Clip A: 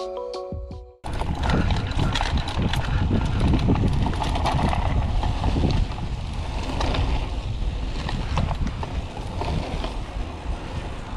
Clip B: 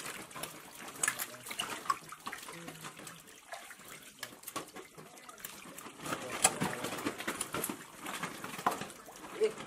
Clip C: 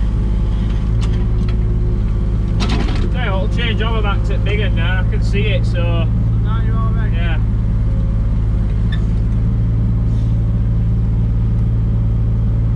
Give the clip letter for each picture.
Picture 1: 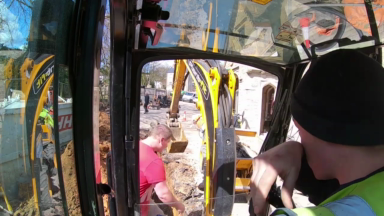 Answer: C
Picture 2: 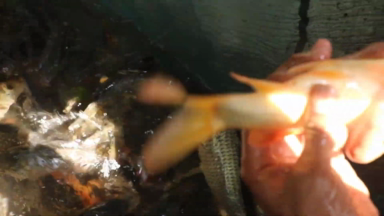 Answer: B